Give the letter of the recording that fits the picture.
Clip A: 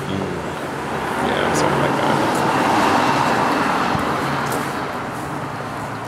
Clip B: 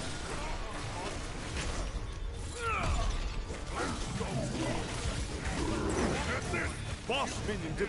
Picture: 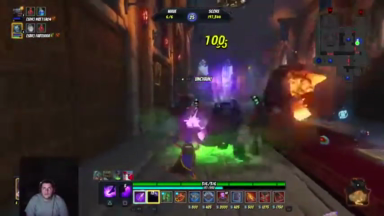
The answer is B